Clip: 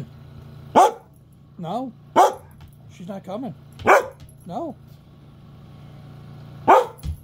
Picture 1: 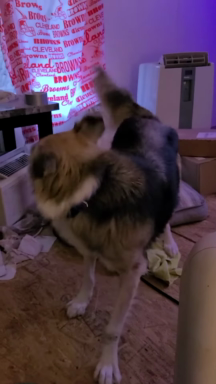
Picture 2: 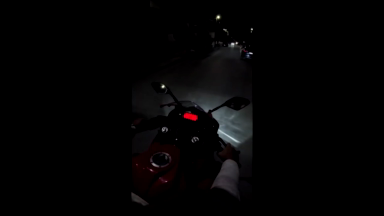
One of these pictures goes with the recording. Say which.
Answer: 1